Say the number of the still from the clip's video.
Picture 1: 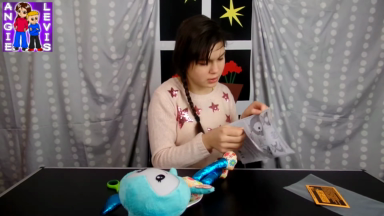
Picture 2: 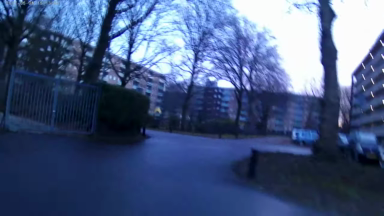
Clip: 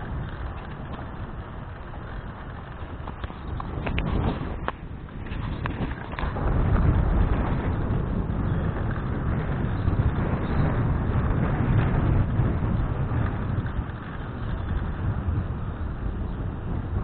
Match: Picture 2